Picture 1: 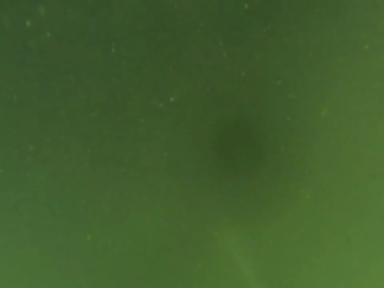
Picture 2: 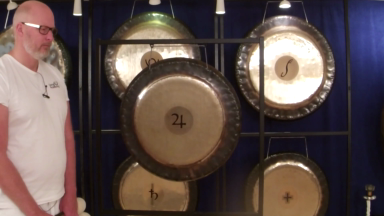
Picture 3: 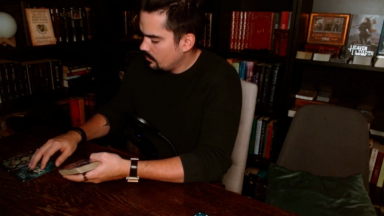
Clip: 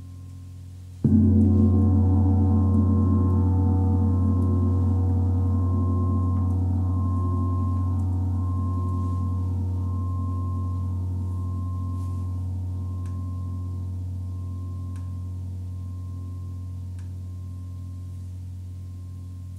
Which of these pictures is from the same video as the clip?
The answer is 2